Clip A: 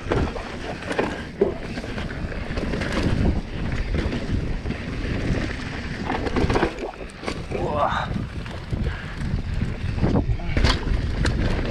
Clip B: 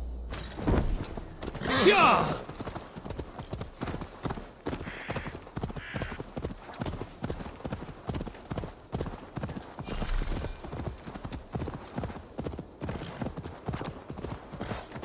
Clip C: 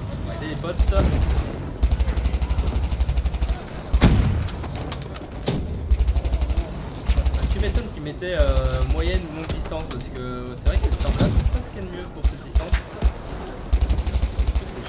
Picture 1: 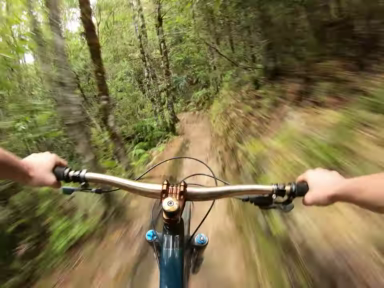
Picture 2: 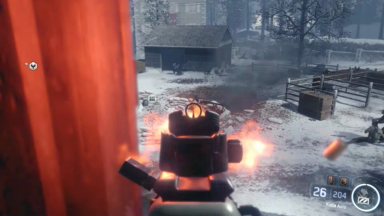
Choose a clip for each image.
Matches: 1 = A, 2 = C